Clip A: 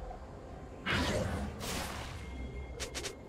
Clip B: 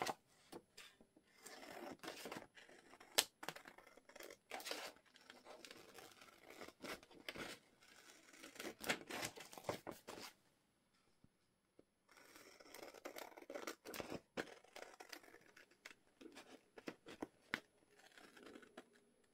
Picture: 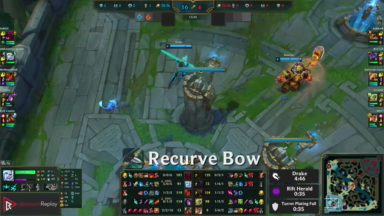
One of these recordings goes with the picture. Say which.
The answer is A